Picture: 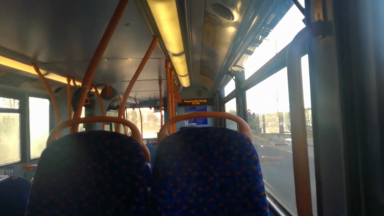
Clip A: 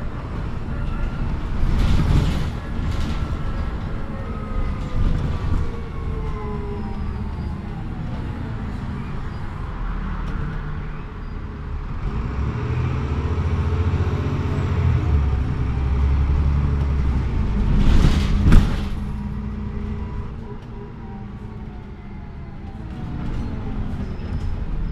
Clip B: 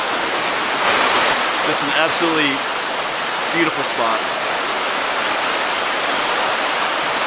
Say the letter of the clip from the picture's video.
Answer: A